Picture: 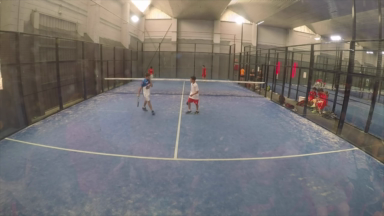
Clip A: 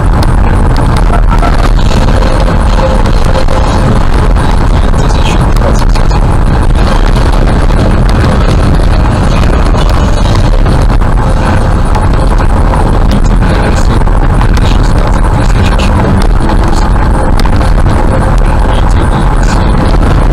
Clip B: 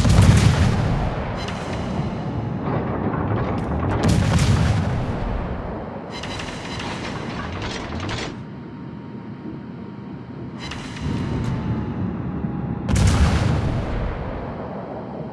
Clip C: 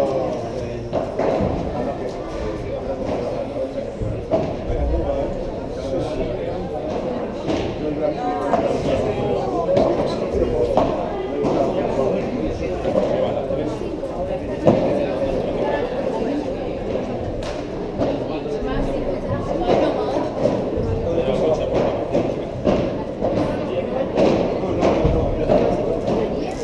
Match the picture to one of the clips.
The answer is C